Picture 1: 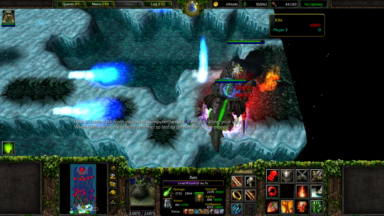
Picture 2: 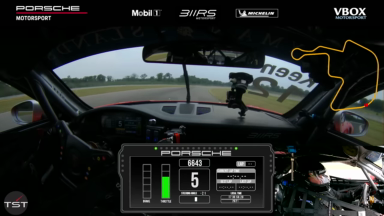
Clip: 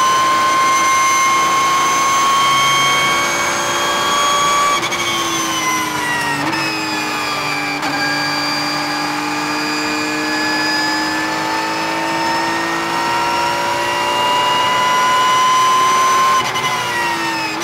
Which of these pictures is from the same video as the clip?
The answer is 2